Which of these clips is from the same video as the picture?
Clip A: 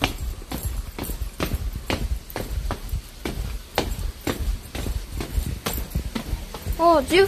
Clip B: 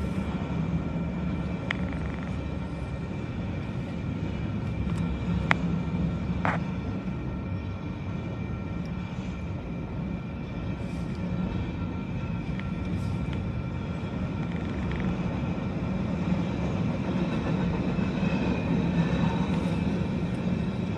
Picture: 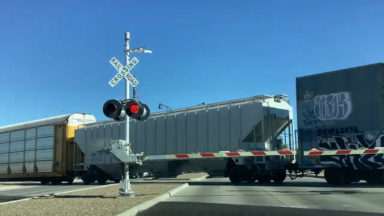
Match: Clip B